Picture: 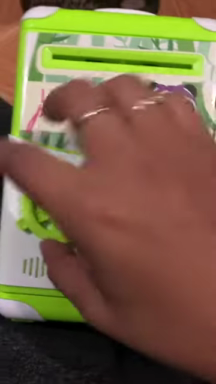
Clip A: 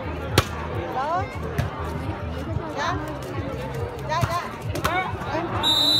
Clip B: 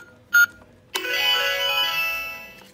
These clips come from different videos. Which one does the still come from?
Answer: B